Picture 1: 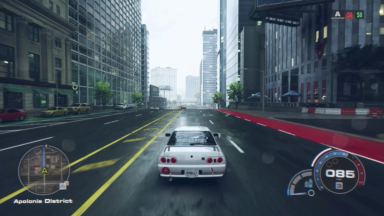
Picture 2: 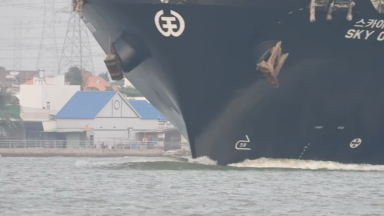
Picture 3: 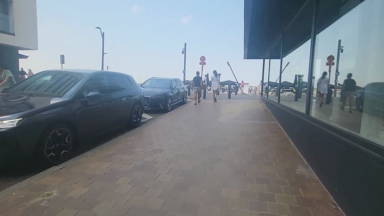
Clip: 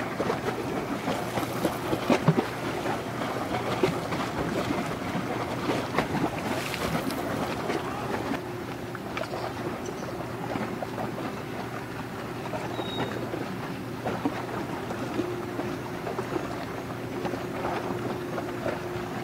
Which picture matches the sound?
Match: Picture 2